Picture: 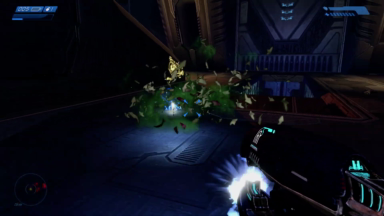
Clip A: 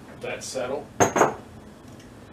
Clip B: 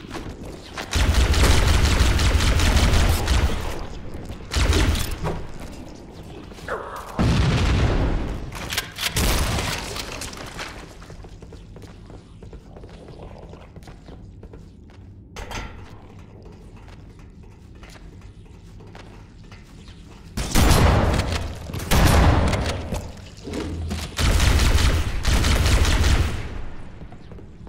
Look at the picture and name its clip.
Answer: B